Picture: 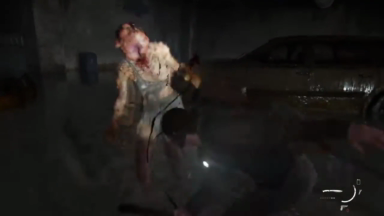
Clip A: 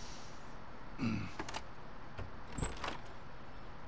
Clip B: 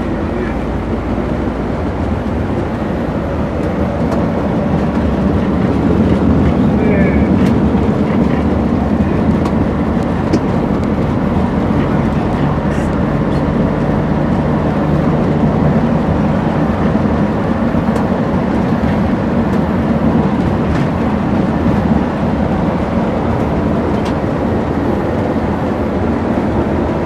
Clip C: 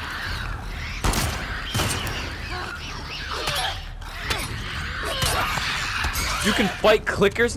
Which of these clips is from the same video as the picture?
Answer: C